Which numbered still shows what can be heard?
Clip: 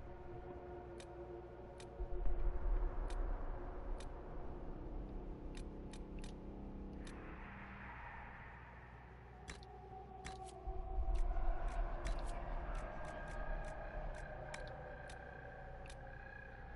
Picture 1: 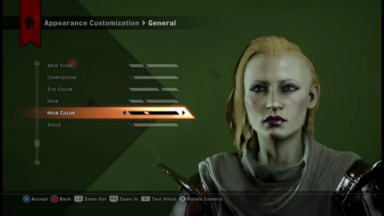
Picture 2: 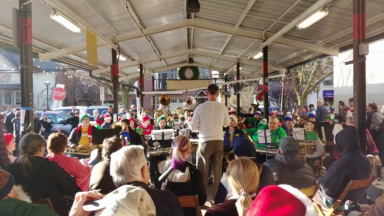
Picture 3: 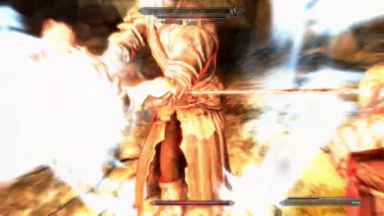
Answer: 1